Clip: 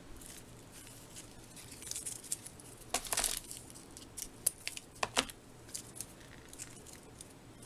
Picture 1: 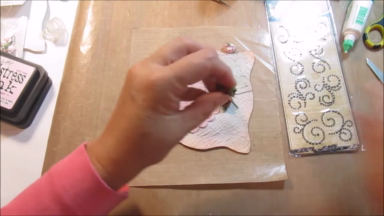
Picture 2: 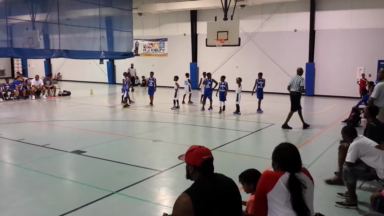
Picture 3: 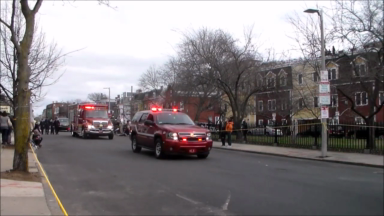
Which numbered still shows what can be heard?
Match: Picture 1